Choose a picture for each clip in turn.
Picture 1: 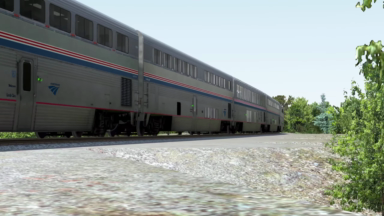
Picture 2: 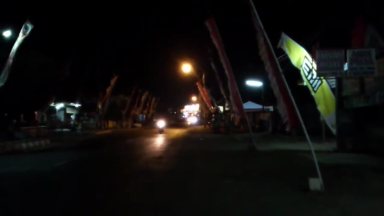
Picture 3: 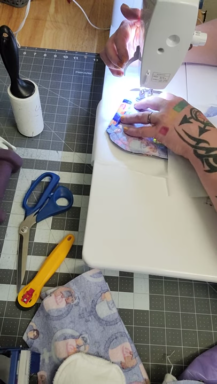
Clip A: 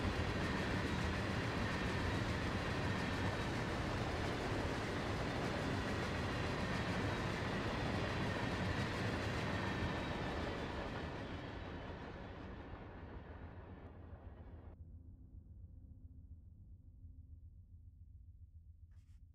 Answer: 1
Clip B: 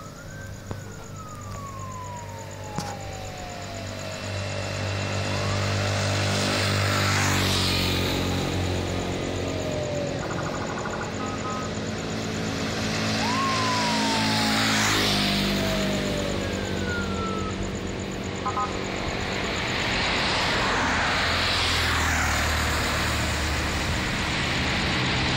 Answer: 2